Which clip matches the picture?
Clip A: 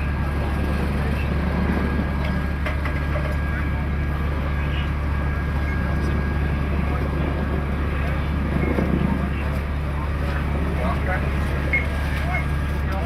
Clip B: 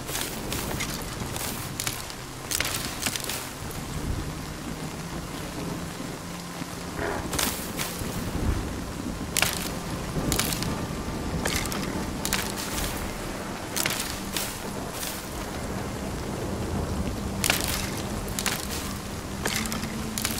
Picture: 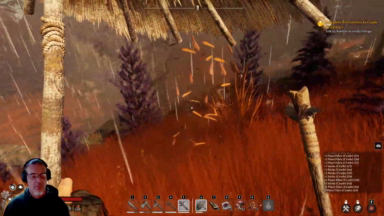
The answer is B